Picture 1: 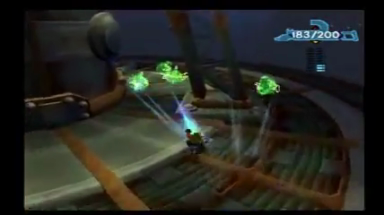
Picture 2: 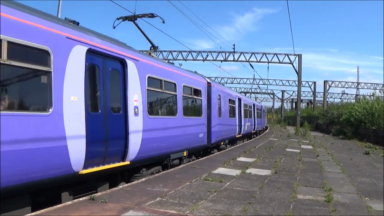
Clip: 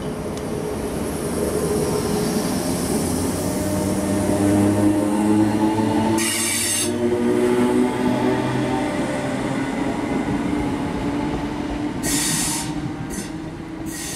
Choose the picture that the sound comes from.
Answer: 2